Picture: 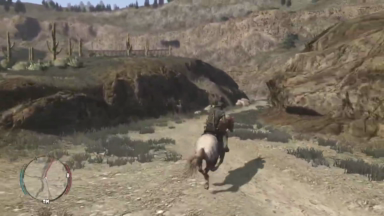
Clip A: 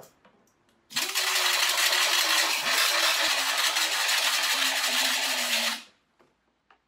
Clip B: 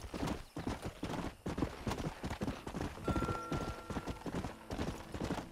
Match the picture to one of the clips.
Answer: B